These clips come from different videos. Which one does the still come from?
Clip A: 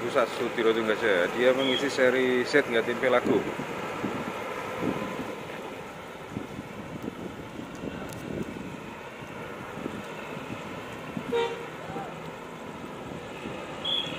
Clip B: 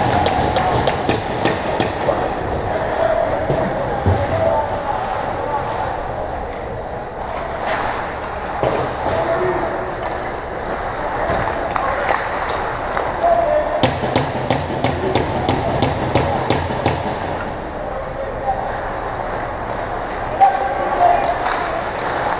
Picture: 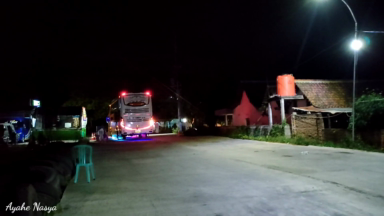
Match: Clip A